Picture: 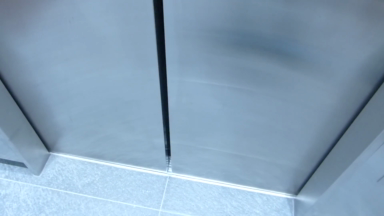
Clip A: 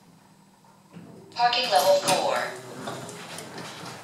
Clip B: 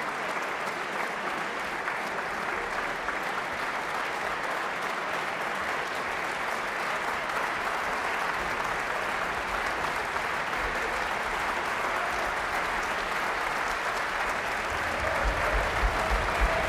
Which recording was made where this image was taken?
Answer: A